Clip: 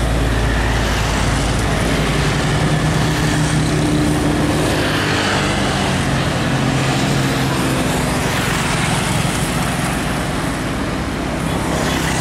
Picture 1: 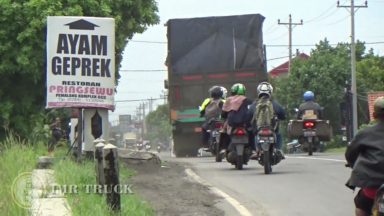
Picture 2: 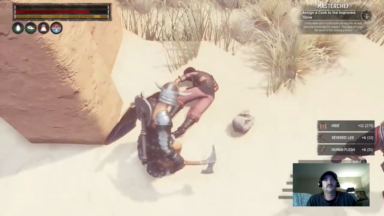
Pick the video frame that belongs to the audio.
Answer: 1